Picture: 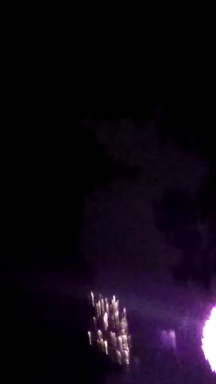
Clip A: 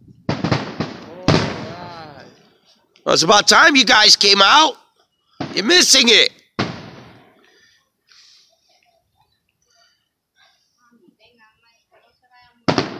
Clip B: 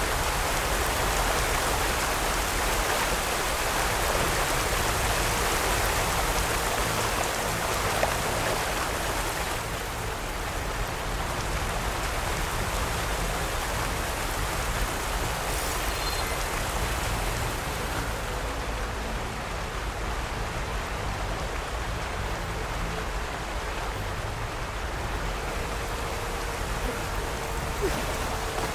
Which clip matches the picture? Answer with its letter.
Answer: A